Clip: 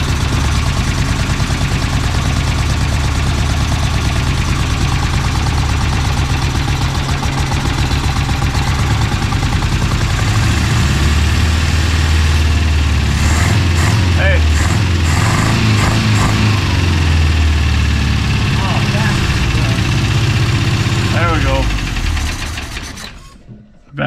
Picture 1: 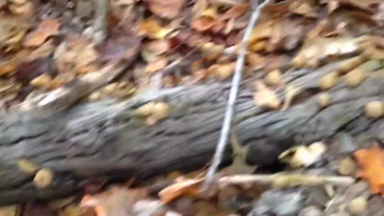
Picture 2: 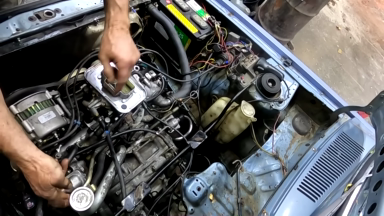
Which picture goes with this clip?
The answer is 2